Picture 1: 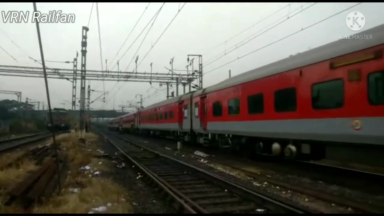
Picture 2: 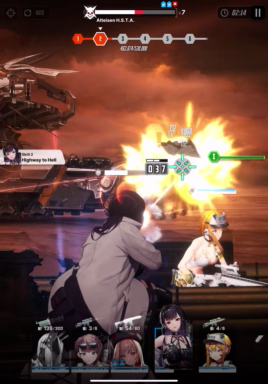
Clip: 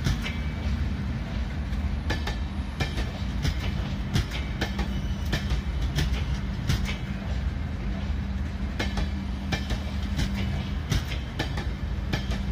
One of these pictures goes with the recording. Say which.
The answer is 1